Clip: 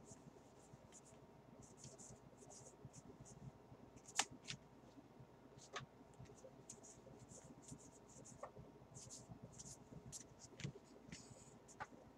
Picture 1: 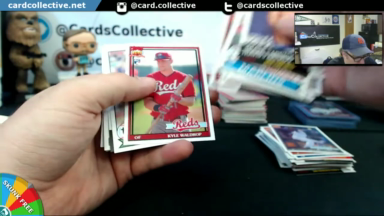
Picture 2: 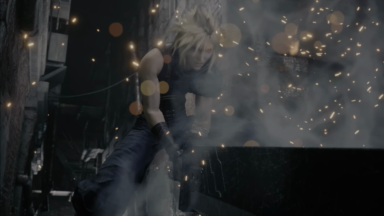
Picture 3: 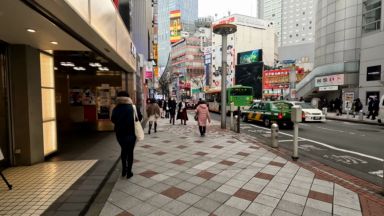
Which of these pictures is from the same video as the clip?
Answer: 1